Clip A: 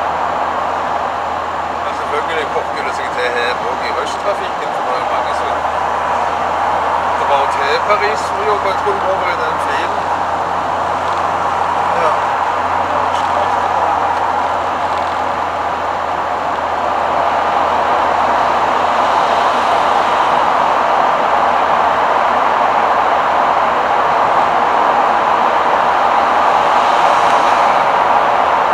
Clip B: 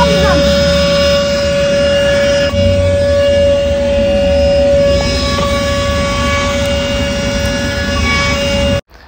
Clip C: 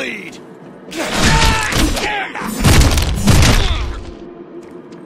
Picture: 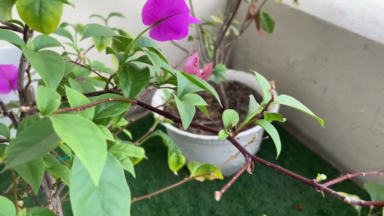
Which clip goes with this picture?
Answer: B